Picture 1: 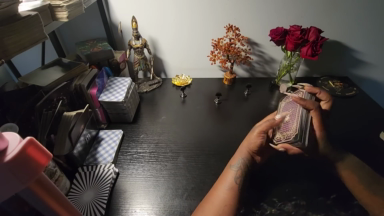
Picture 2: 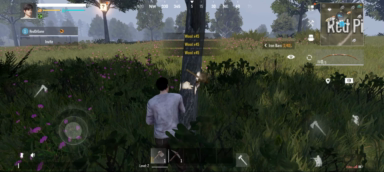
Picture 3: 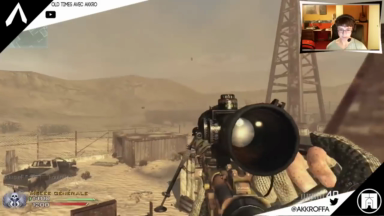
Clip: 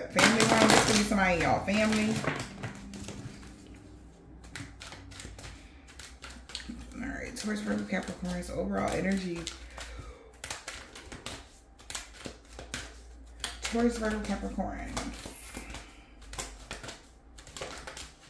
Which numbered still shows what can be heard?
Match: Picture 1